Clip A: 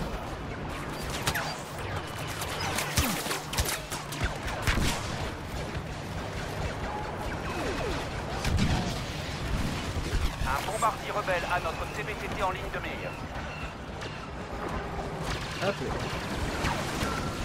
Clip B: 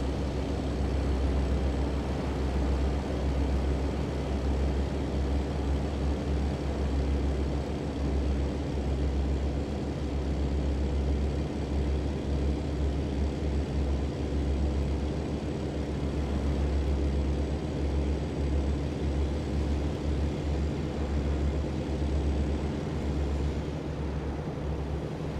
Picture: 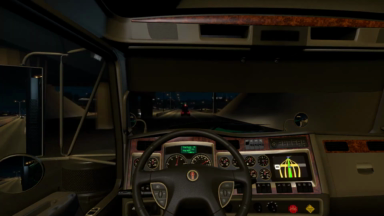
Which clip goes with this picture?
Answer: B